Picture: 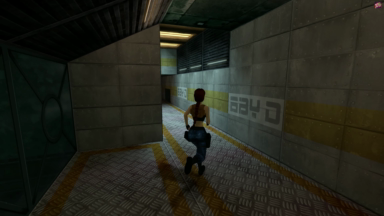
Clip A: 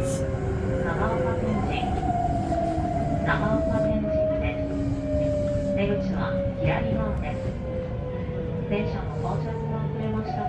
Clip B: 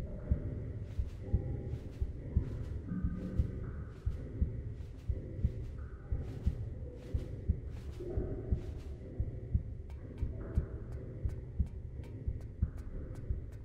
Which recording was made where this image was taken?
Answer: B